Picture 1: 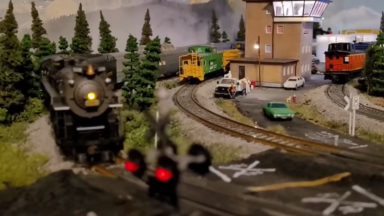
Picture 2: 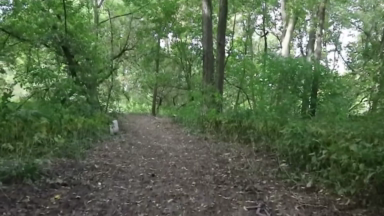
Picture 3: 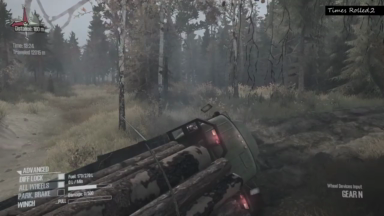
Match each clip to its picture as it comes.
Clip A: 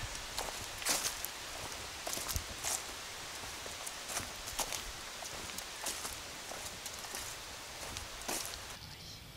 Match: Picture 2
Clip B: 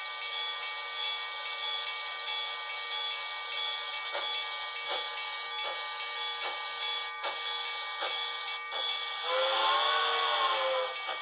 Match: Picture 1